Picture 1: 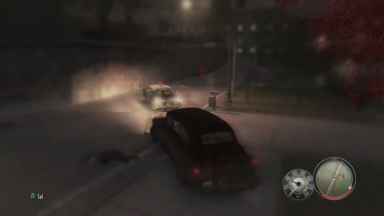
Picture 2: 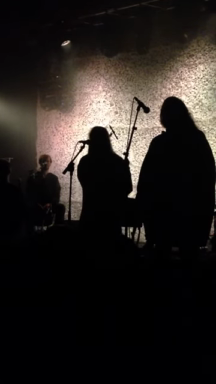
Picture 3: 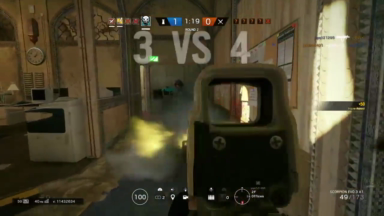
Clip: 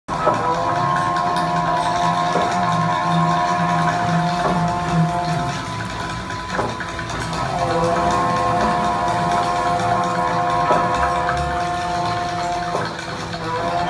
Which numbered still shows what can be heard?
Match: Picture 2